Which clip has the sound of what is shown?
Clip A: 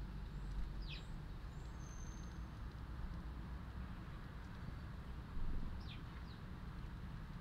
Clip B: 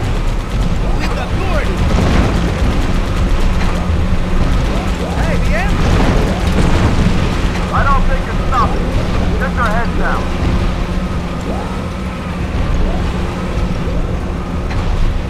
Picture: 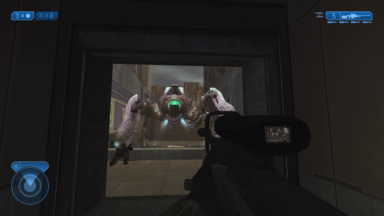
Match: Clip B